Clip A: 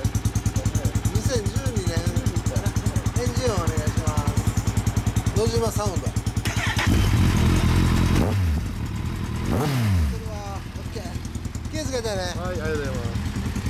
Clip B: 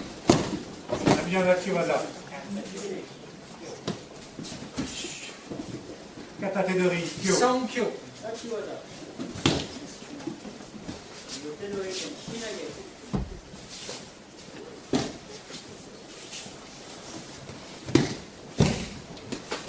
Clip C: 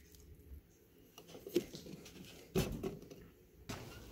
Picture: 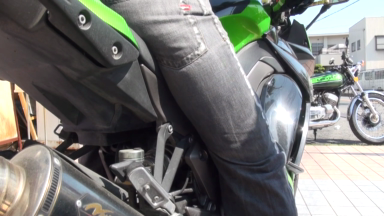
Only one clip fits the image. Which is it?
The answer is A